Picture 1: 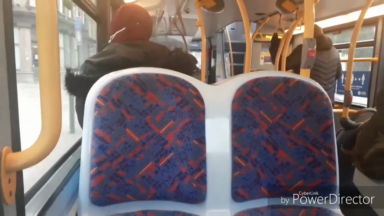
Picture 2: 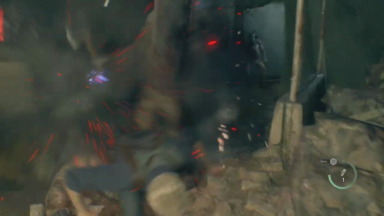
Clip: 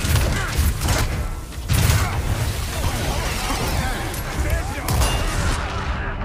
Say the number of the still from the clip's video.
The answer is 2